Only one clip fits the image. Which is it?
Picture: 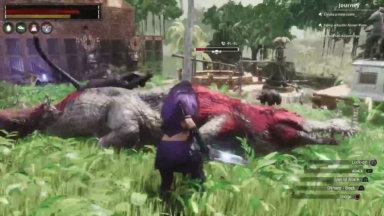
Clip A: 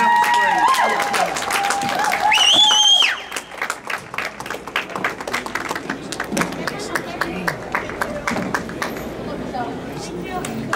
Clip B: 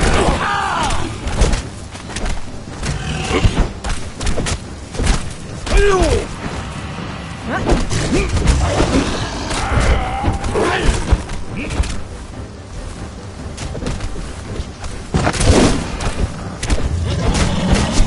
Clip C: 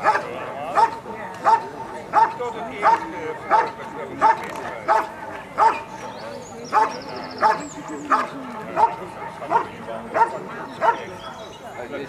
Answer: B